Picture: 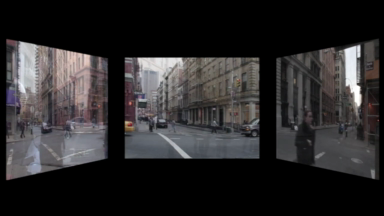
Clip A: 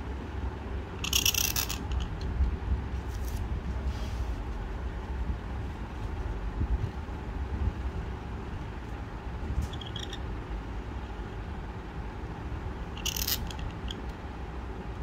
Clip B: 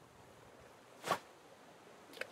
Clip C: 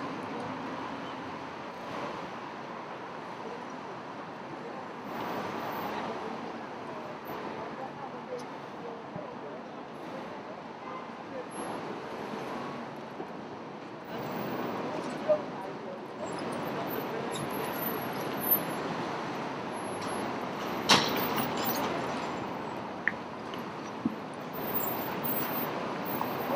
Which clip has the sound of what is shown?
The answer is C